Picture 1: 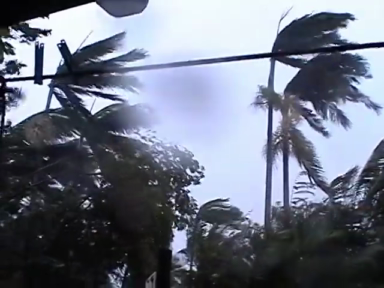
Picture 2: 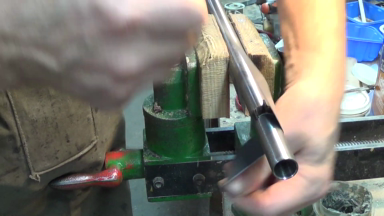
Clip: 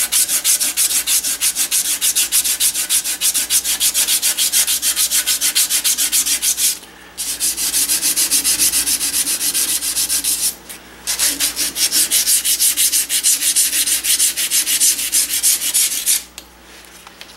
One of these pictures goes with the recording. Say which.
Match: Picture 2